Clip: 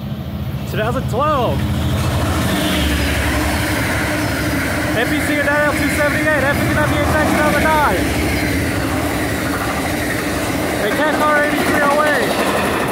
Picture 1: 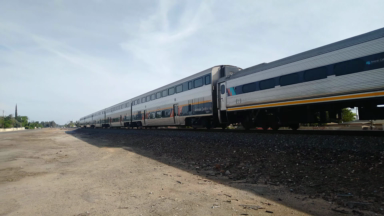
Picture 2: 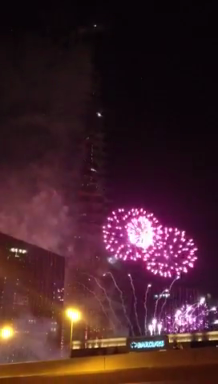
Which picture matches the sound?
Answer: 1